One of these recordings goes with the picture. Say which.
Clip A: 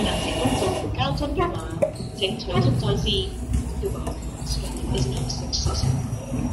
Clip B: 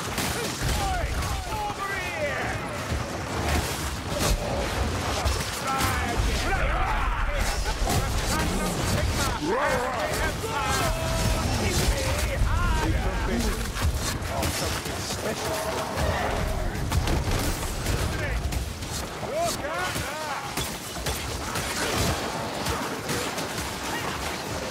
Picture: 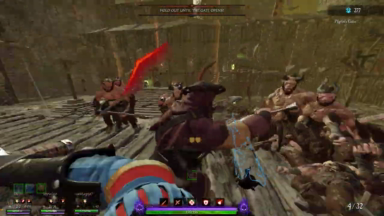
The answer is B